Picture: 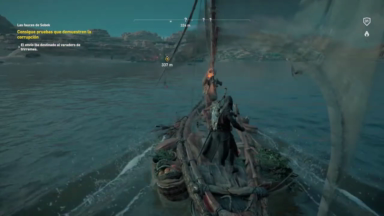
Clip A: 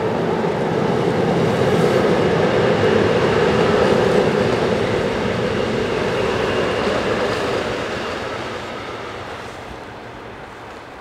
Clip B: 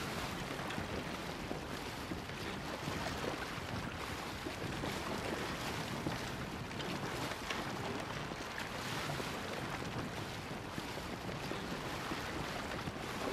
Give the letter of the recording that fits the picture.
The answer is B